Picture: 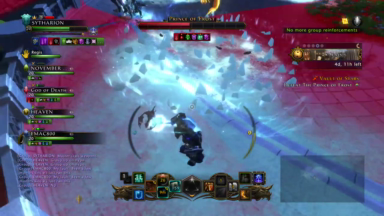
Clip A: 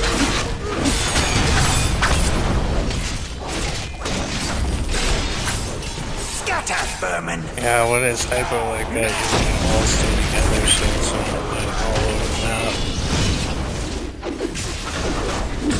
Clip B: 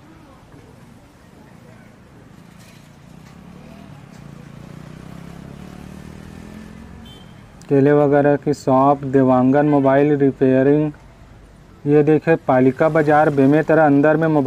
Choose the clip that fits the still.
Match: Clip A